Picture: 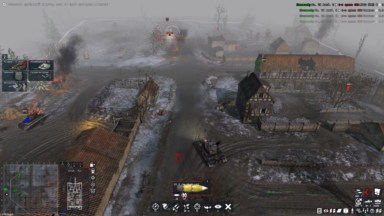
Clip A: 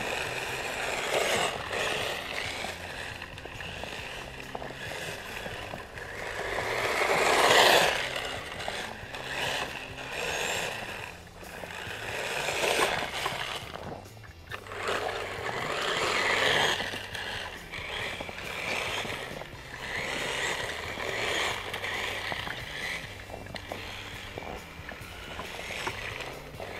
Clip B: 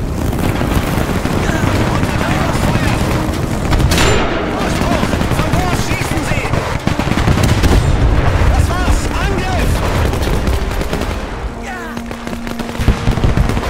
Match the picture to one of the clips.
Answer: B